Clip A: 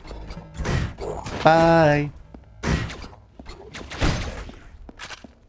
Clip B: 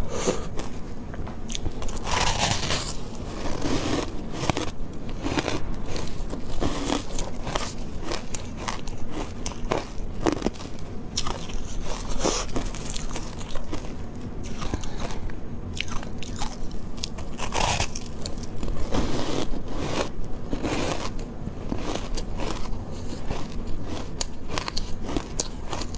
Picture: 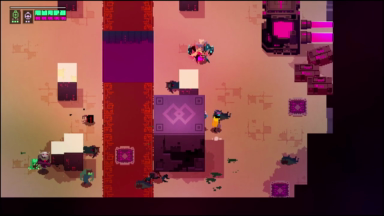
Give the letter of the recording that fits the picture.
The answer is A